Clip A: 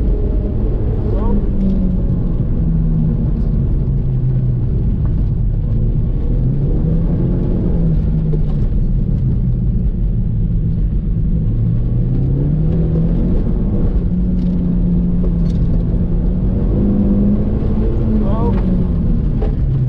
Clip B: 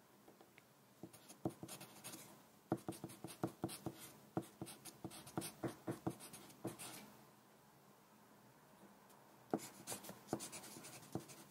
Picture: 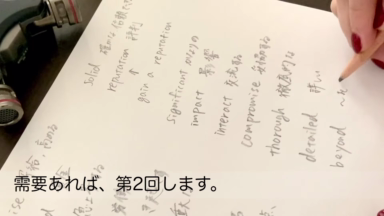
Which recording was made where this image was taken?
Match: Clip B